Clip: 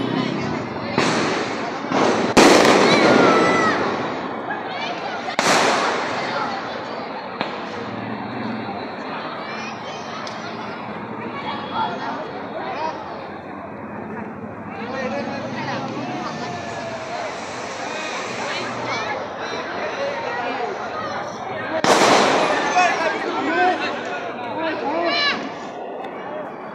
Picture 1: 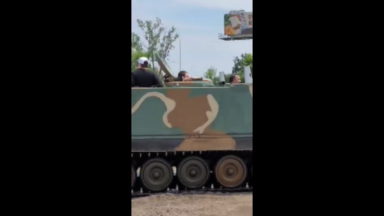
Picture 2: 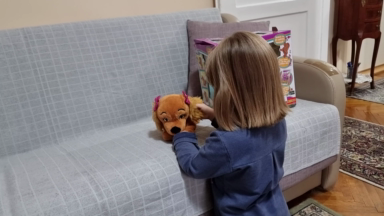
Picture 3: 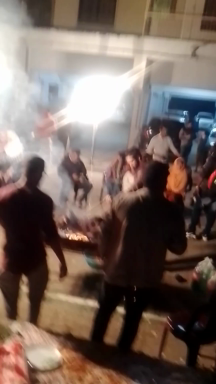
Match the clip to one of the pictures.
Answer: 3